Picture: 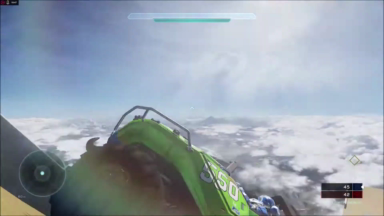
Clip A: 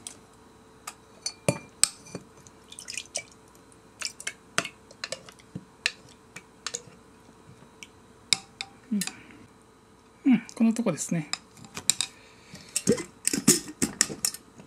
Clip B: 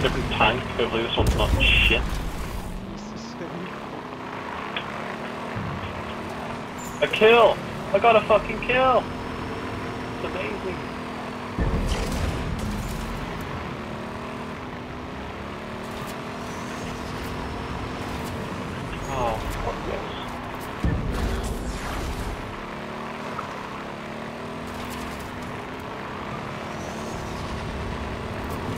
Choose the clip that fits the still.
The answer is B